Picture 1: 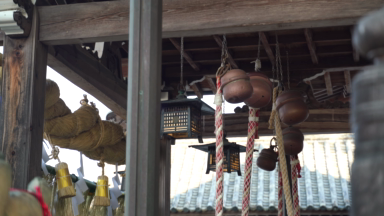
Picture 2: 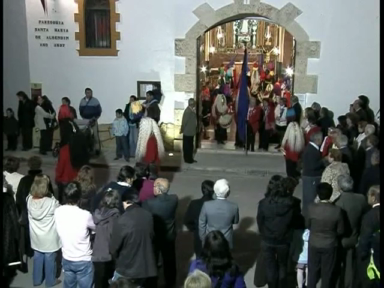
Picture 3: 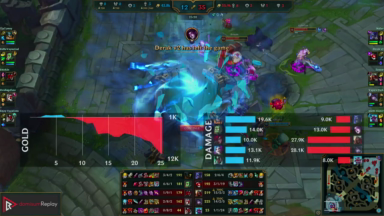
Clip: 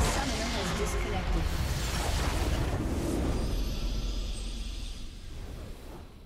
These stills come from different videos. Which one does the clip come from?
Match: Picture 3